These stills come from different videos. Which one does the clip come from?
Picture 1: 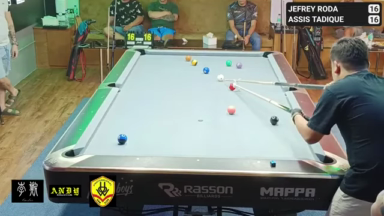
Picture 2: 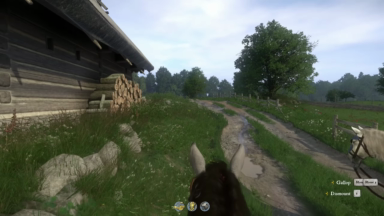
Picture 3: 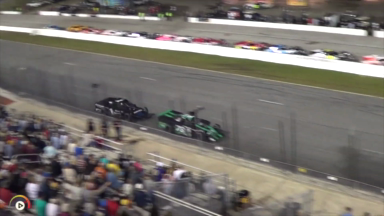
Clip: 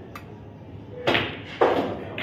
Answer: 1